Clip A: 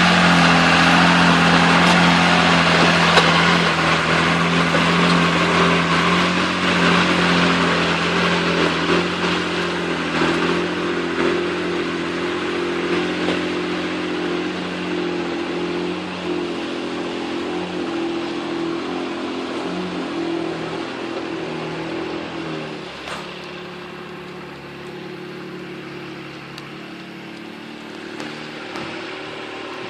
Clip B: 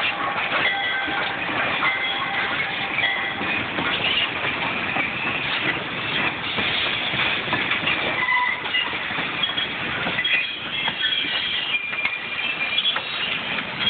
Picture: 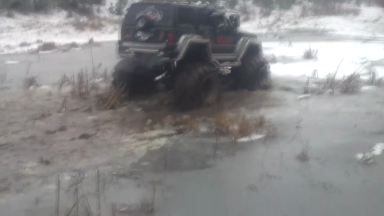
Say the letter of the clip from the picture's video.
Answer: A